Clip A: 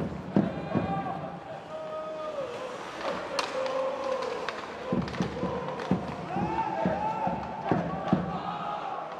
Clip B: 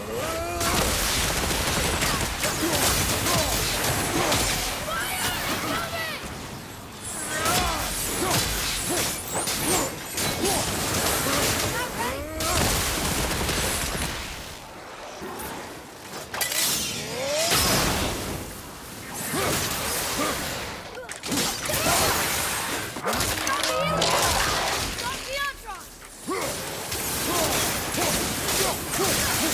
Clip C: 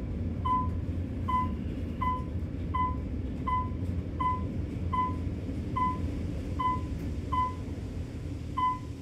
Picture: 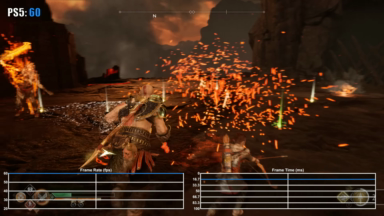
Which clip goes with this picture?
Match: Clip B